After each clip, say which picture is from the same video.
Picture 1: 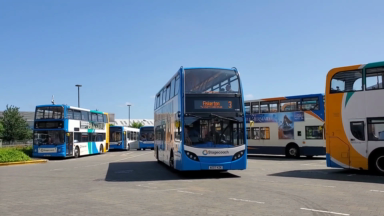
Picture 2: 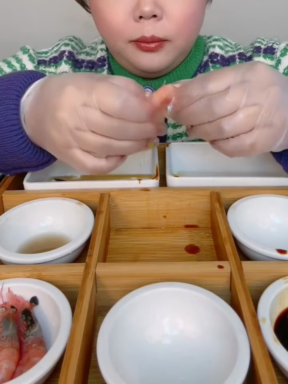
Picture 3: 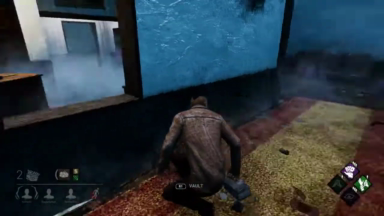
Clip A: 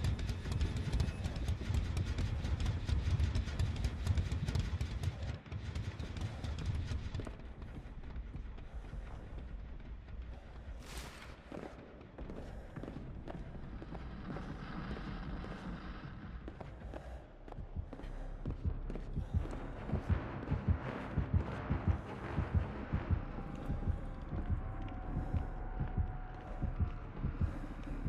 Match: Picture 3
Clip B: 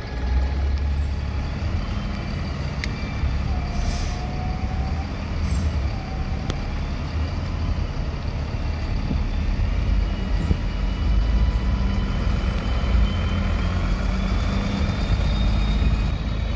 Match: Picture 1